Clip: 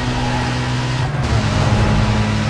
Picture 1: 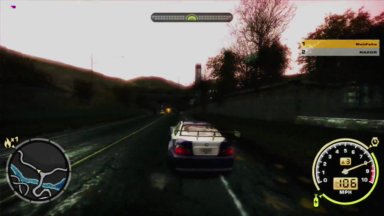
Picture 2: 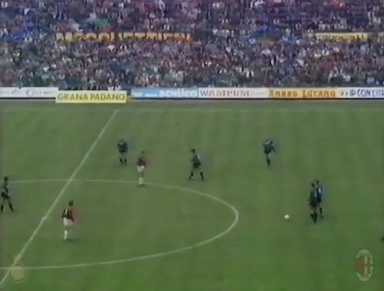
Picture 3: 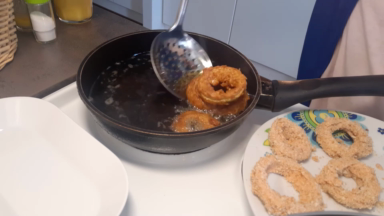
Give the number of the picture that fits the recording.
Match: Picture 1